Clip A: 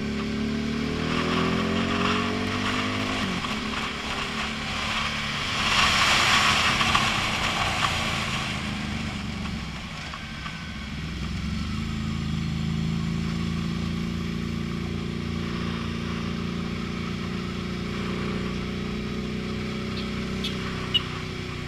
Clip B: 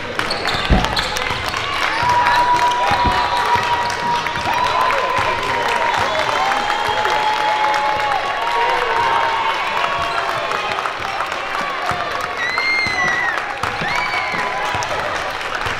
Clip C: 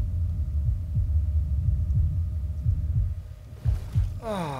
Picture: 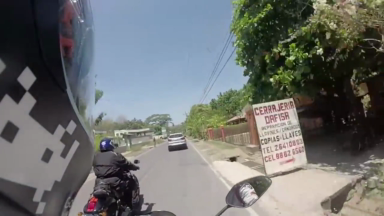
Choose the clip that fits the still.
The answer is A